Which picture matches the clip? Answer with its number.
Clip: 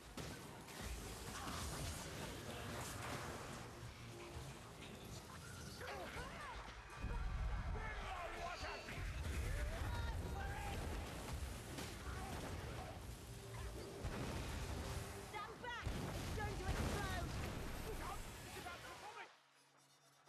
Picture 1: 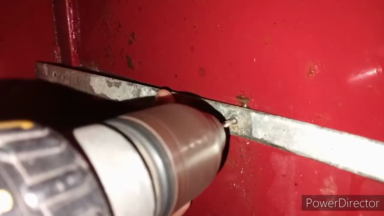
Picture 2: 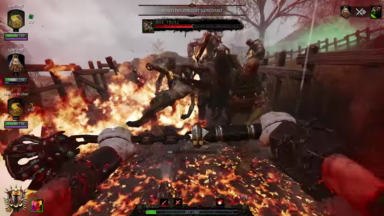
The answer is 2